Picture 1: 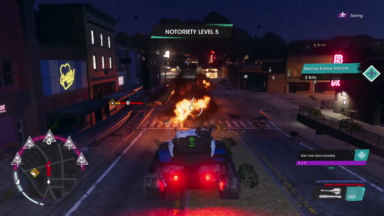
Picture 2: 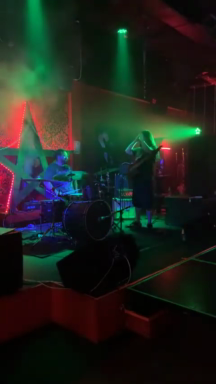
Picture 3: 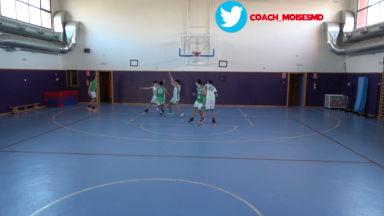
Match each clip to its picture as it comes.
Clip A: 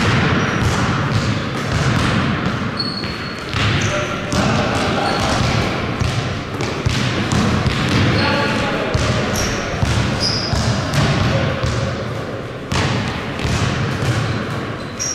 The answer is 3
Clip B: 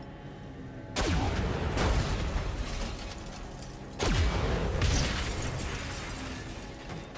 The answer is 1